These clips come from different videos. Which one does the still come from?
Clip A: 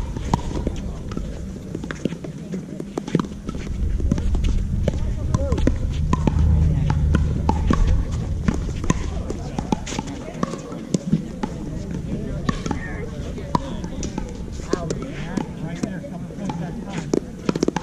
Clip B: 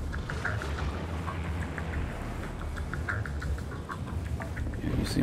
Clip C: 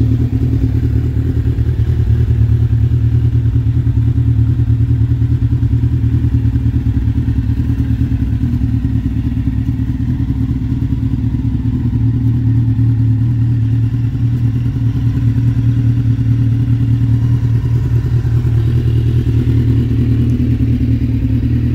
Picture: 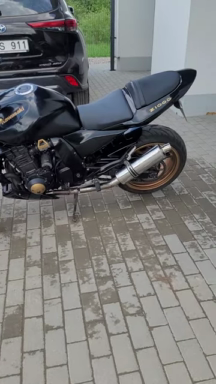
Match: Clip C